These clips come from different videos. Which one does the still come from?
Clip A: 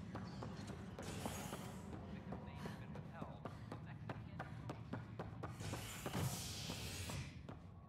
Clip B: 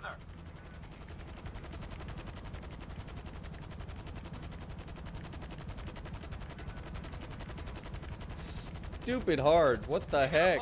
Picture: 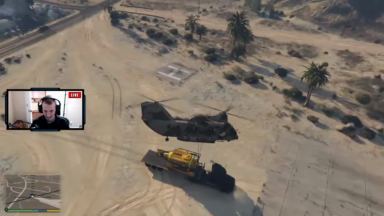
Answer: B